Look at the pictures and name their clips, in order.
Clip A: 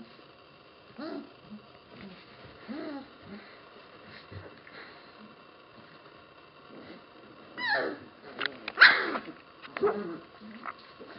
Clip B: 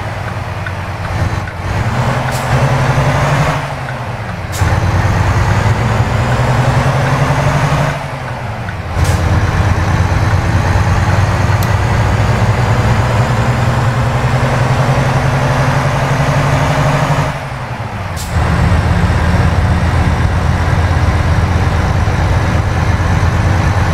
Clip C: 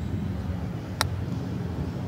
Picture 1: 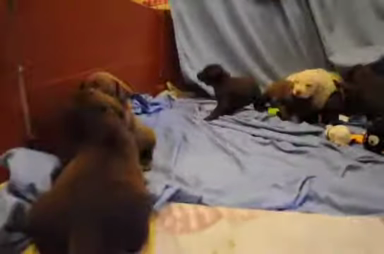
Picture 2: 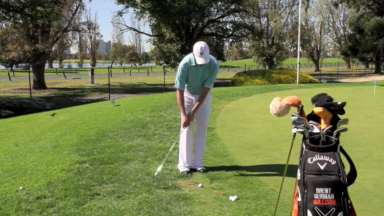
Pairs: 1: A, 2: C